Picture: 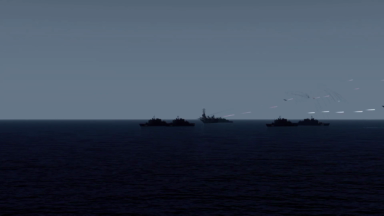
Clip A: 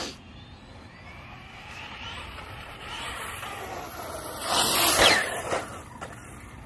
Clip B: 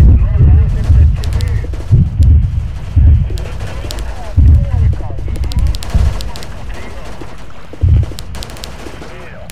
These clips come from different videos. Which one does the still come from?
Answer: B